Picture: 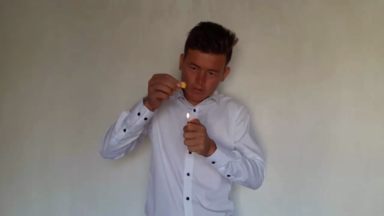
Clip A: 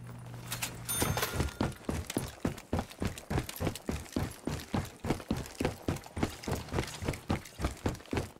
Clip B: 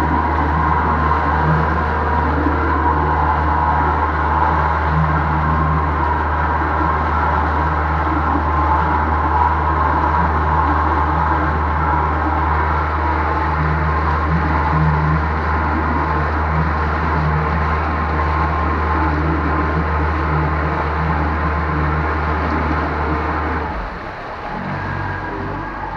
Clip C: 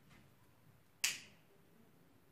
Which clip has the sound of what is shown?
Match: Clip C